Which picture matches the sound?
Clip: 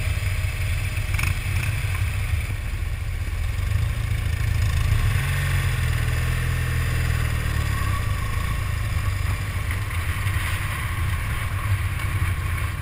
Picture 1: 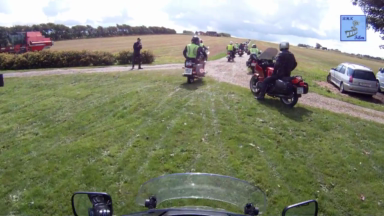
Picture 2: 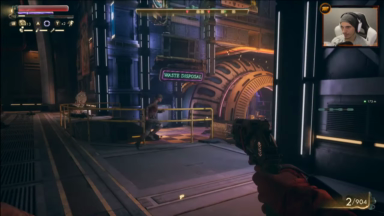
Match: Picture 1